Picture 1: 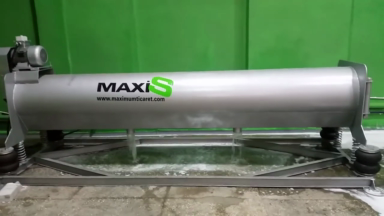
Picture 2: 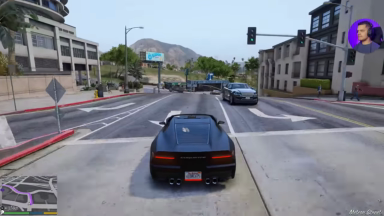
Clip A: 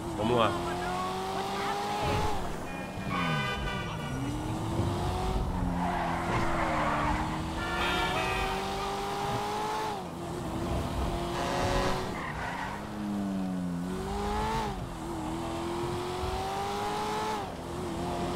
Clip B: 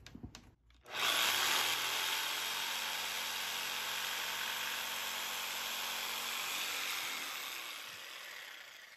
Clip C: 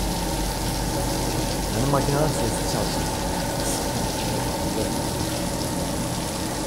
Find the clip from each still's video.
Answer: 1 C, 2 A